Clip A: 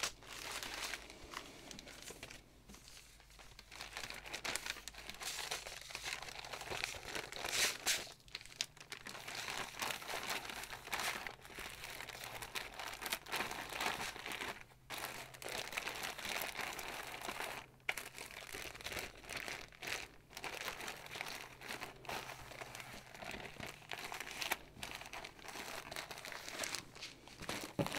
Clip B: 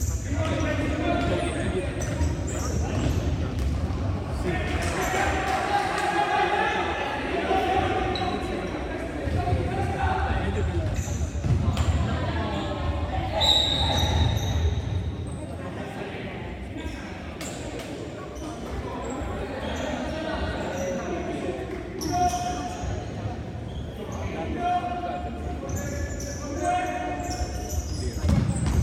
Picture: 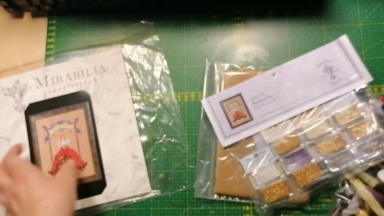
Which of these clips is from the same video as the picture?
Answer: A